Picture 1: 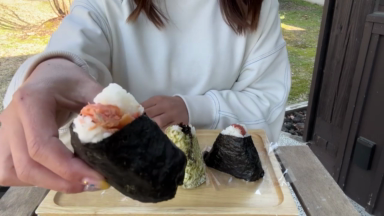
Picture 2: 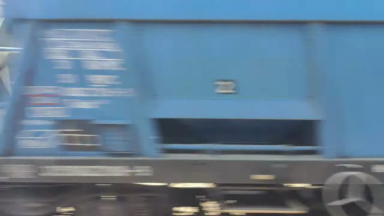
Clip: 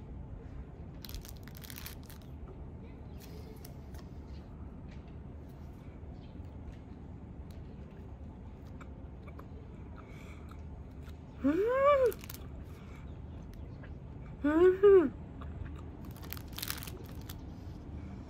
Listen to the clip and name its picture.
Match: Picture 1